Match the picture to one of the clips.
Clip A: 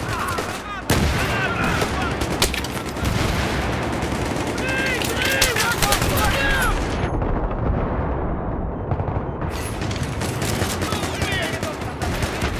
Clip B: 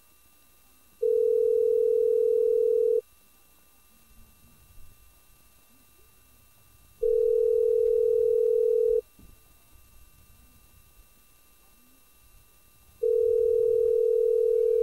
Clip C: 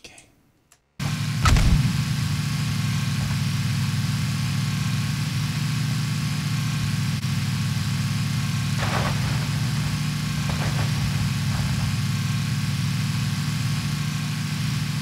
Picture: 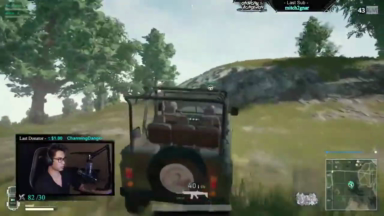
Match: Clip C